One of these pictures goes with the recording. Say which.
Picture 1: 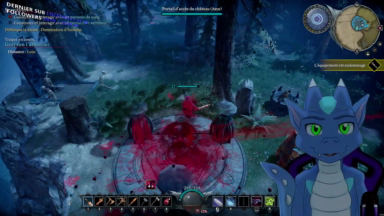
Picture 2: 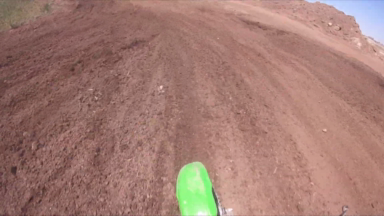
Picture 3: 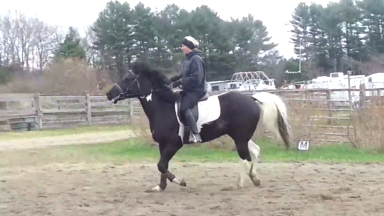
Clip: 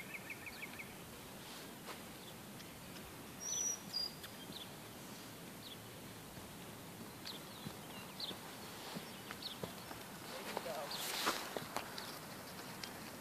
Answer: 3